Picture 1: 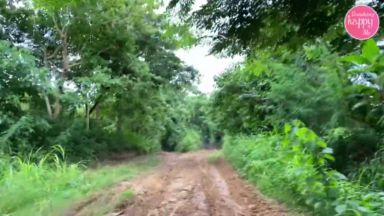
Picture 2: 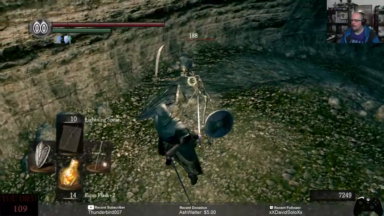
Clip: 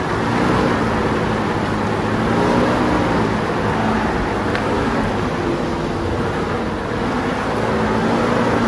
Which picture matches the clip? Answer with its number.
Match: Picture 1